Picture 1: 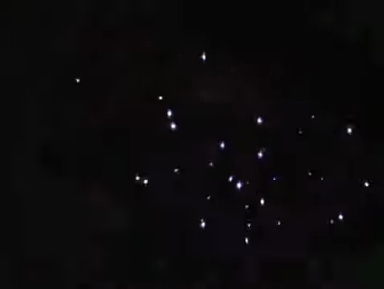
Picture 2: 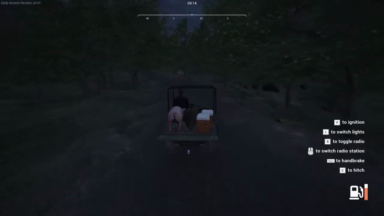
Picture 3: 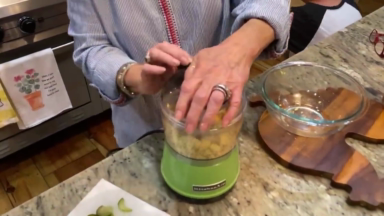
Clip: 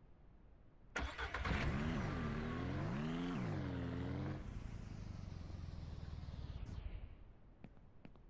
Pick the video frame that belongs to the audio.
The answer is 2